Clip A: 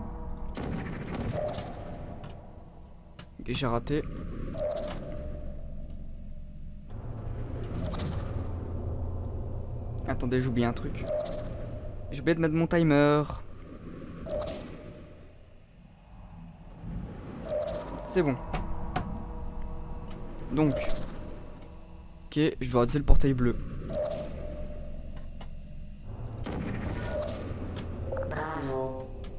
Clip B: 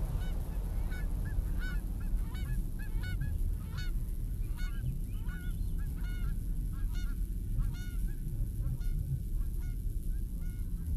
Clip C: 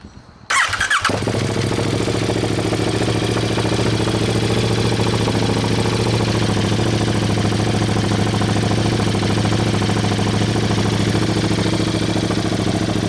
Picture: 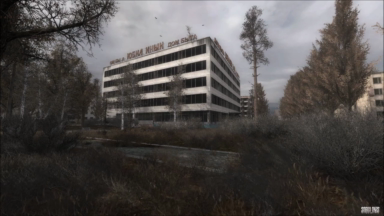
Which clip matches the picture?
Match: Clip B